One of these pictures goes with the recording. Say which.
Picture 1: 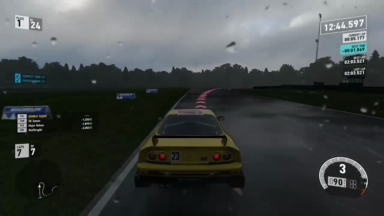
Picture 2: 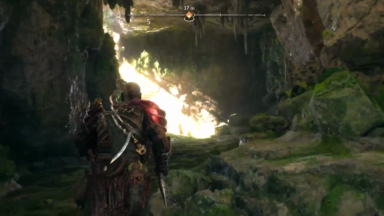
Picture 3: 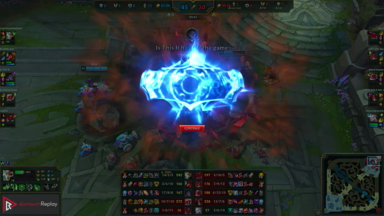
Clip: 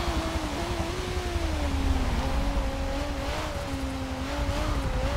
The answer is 1